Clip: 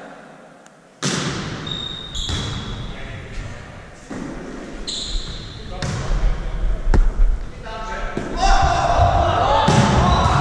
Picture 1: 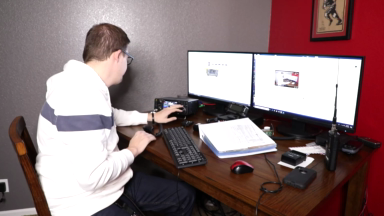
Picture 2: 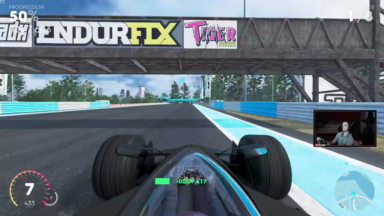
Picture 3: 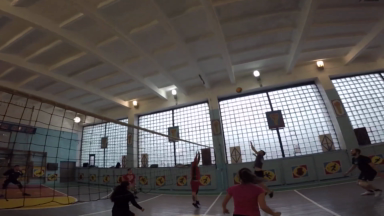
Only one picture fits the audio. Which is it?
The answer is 3